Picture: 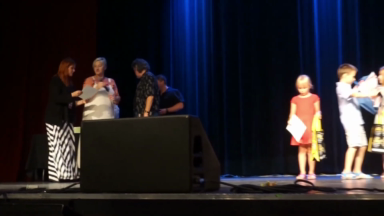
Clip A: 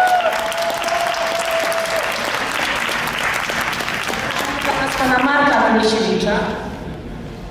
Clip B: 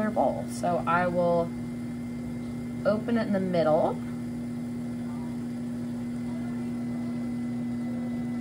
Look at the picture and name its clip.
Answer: A